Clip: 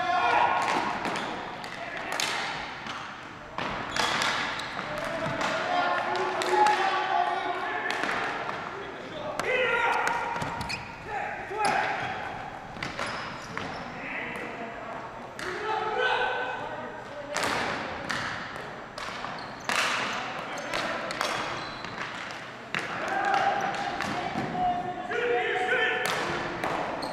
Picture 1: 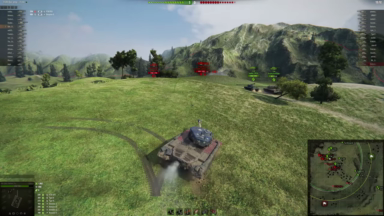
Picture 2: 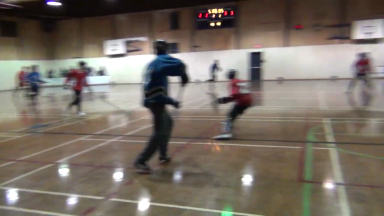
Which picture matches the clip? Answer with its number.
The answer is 2